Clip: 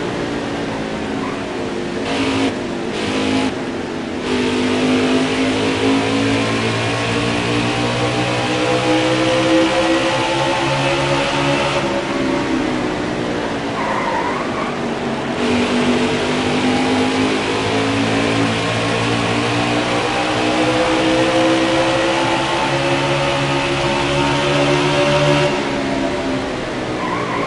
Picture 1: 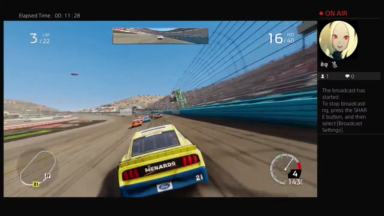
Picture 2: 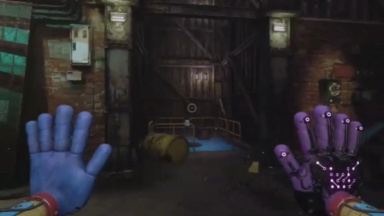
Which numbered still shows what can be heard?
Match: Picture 1